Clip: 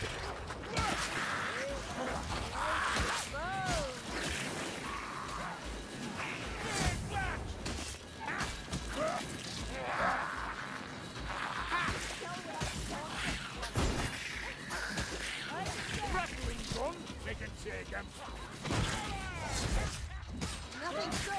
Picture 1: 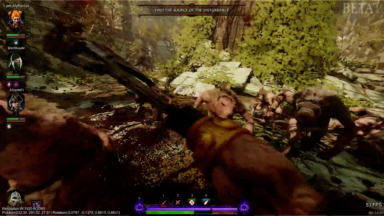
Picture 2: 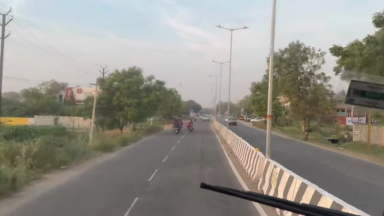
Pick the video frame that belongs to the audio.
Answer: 1